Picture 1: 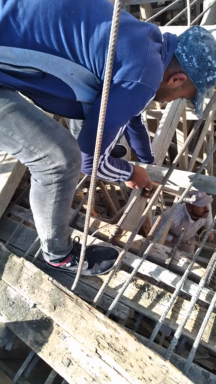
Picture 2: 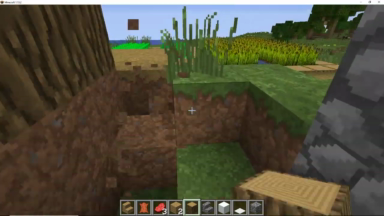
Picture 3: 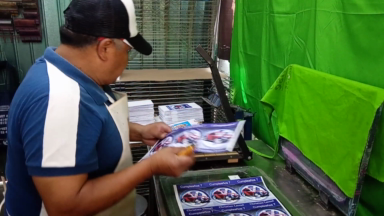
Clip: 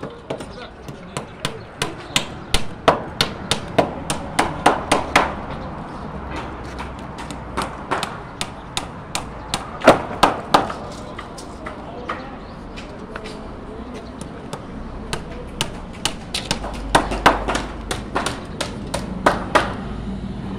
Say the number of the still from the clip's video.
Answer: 1